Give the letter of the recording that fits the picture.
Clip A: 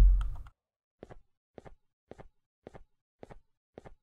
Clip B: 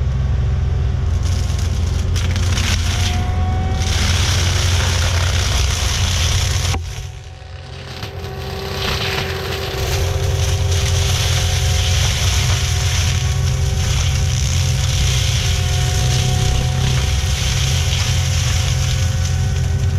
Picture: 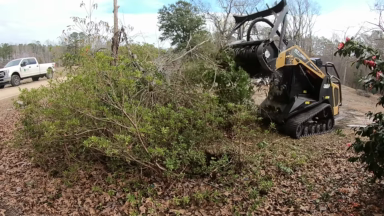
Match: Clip B